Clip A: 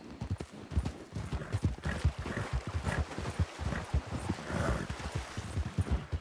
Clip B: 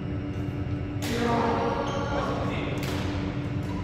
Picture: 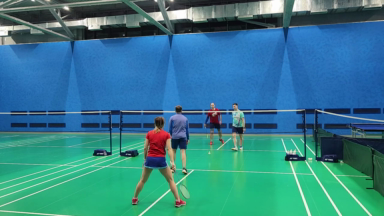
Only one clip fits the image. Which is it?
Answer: B